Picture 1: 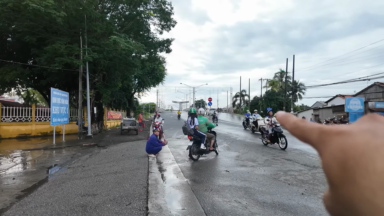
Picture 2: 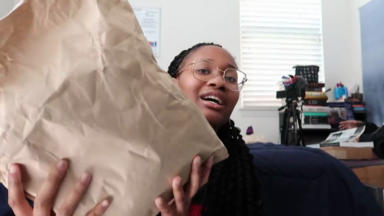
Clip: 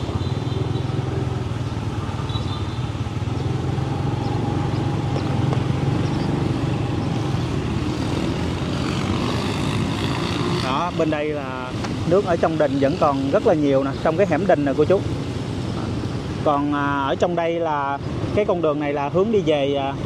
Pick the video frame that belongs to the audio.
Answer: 1